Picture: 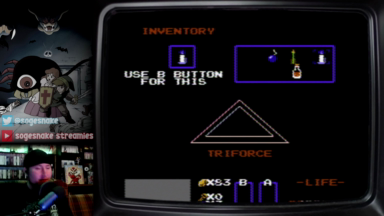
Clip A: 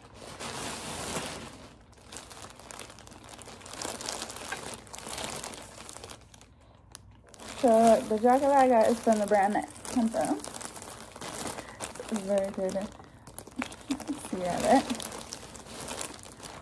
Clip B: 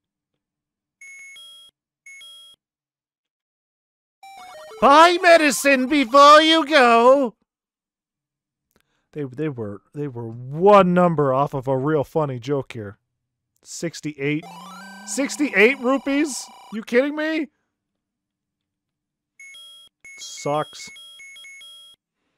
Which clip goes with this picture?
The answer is B